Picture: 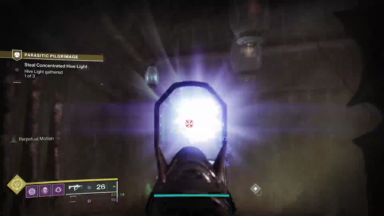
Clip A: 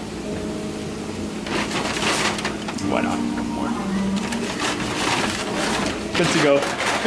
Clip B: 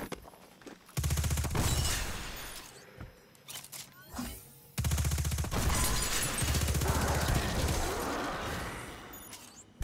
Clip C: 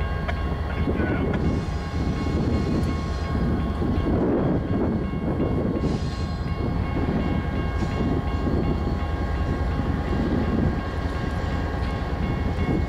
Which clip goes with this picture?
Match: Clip B